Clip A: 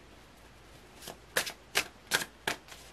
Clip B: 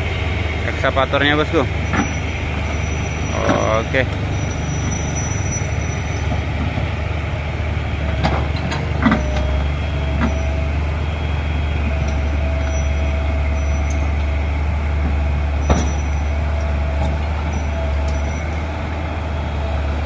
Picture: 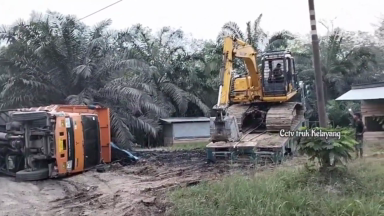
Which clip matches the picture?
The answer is B